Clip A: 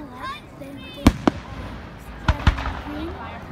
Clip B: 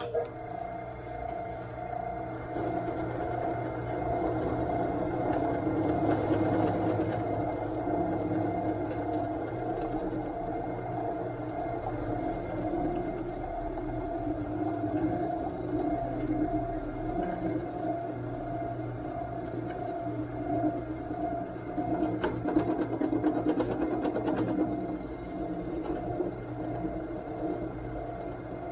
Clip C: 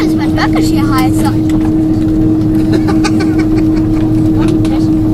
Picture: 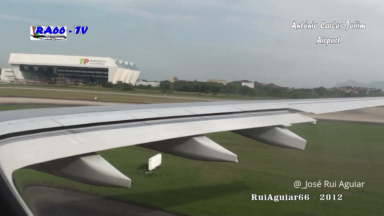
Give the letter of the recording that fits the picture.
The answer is C